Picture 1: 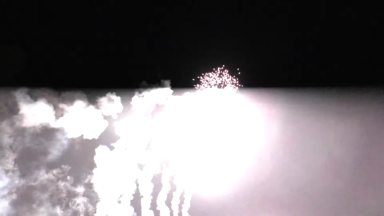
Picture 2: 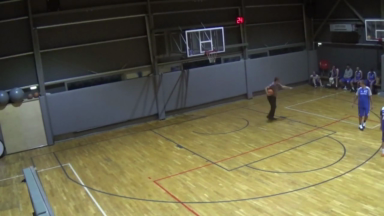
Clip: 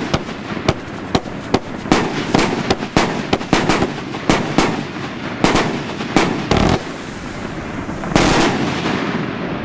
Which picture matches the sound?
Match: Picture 1